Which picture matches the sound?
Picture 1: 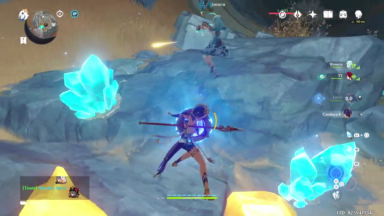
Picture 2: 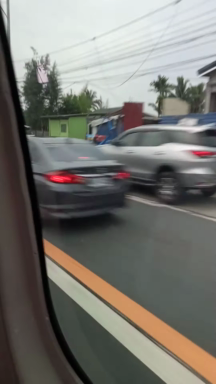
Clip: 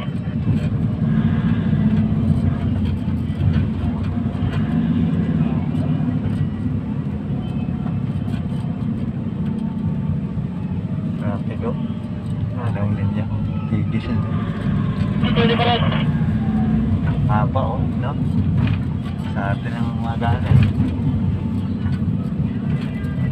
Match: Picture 2